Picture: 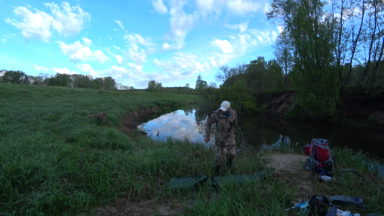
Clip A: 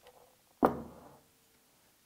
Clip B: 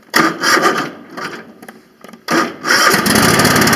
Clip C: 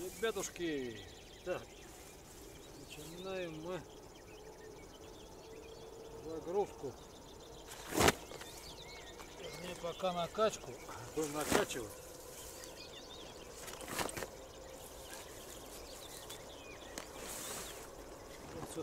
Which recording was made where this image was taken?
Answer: C